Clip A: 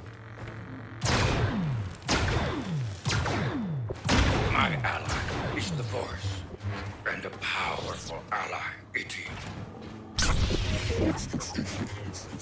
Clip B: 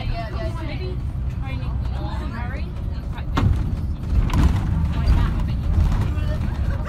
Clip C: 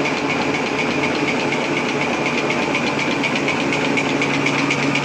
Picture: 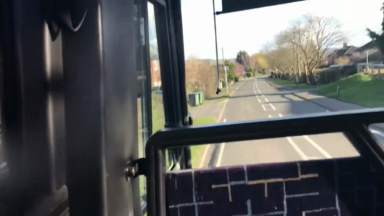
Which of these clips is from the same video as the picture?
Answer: B